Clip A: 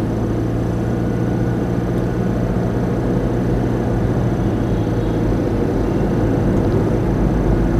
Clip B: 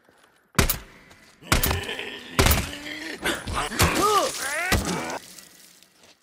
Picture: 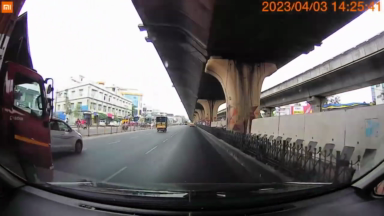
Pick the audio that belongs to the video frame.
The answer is A